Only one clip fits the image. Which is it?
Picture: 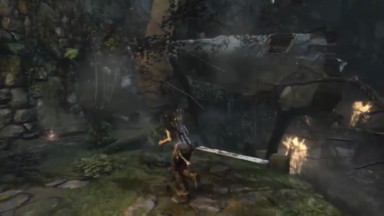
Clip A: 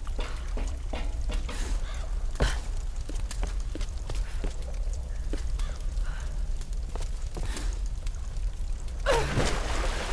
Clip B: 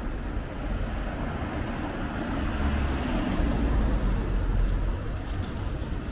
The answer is A